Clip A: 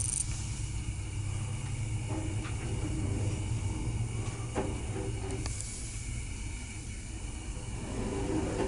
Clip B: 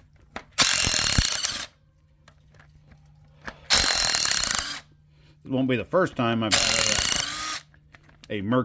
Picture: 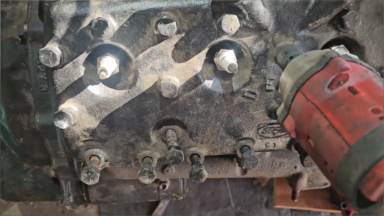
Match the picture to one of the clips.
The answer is B